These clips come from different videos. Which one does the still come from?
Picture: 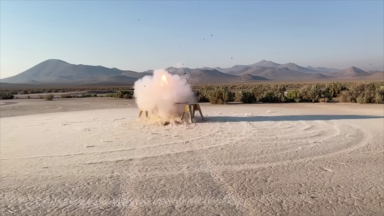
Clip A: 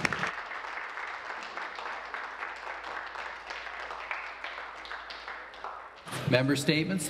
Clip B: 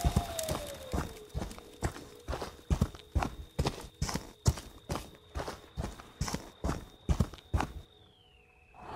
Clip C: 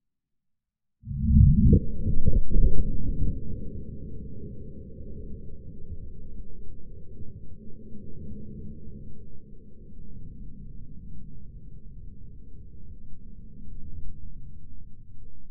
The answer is C